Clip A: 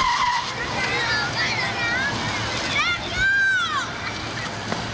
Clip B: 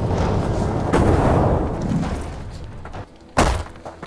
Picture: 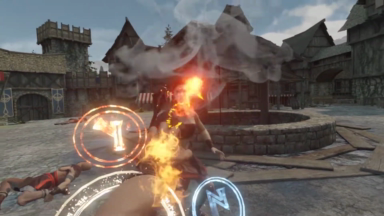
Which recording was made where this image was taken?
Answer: B